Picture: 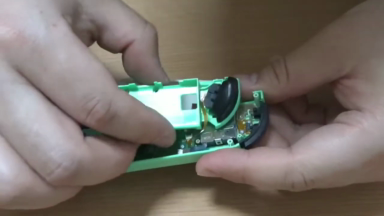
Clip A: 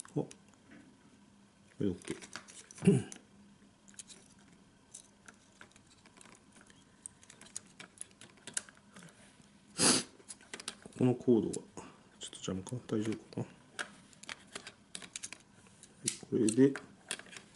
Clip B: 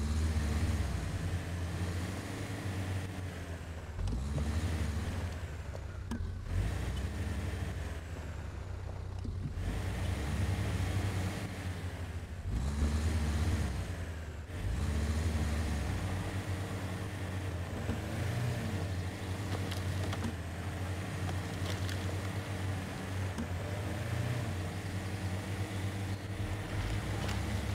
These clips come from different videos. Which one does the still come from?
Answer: A